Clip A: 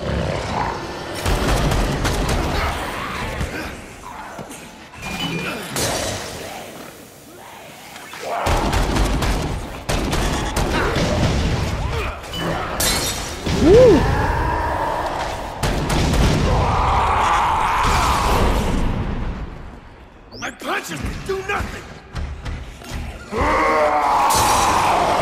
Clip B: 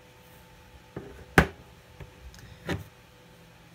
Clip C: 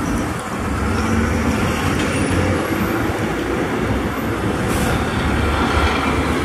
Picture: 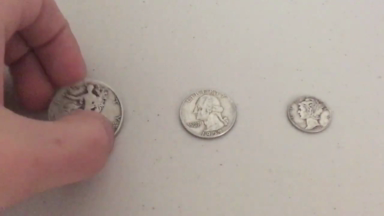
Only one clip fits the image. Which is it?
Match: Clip B